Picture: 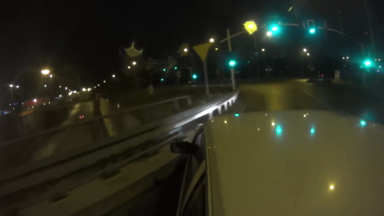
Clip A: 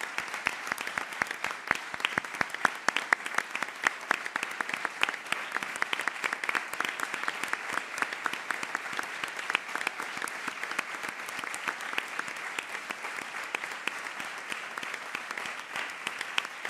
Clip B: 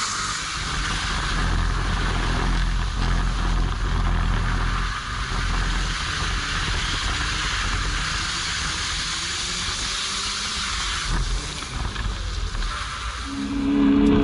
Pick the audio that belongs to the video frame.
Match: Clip B